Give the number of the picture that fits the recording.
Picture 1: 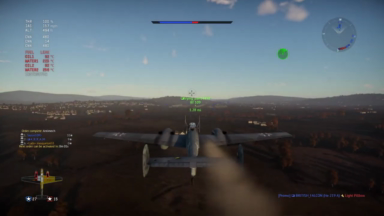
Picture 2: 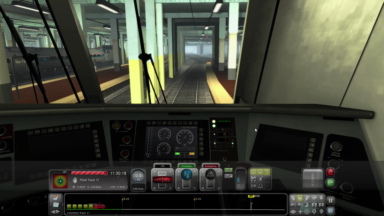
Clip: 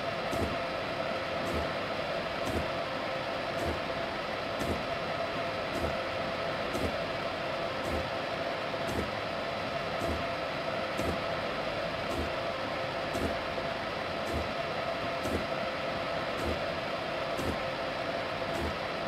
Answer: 2